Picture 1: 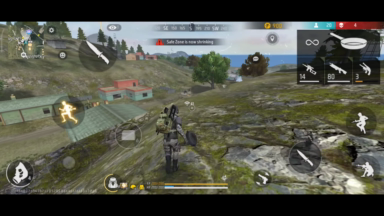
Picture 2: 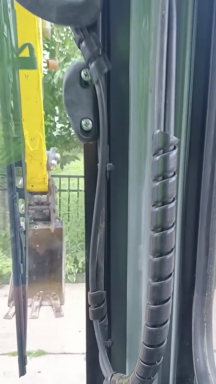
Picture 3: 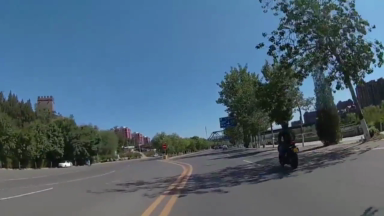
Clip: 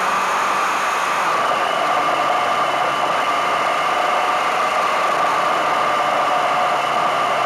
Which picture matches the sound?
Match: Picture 3